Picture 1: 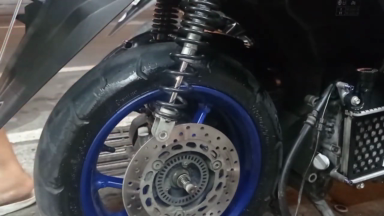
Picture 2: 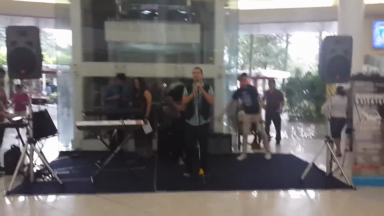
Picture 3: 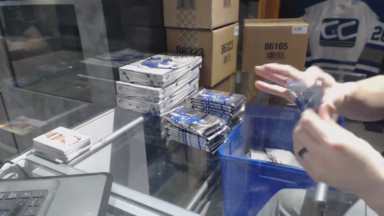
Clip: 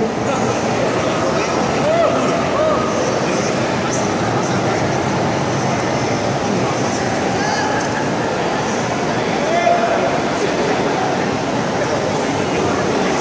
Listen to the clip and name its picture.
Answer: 2